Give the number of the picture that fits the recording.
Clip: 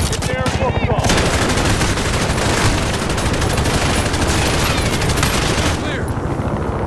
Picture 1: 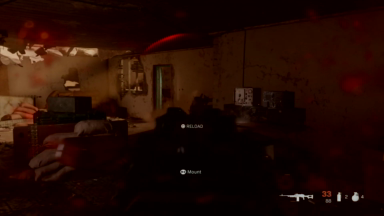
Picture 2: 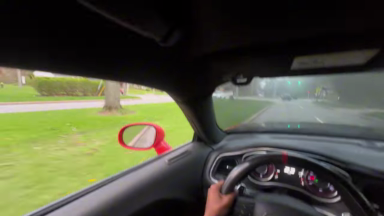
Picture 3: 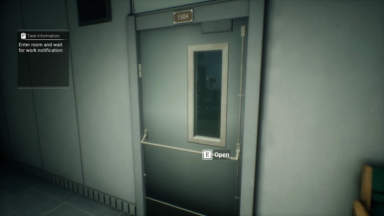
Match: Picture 1